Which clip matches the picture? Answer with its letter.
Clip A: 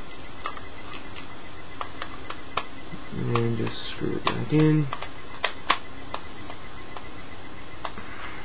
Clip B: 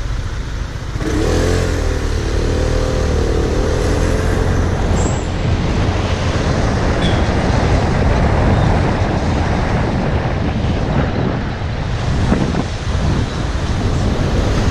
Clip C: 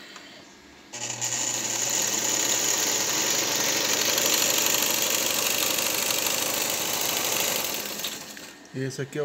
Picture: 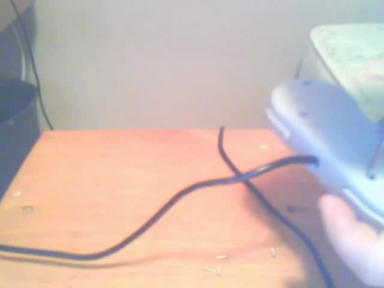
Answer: A